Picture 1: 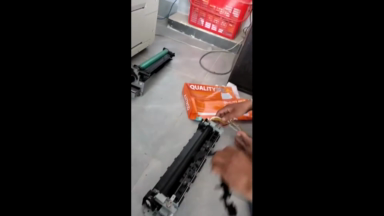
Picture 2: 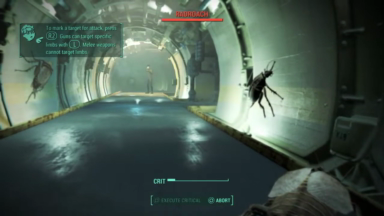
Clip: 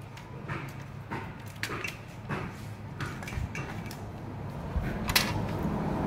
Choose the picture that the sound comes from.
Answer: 1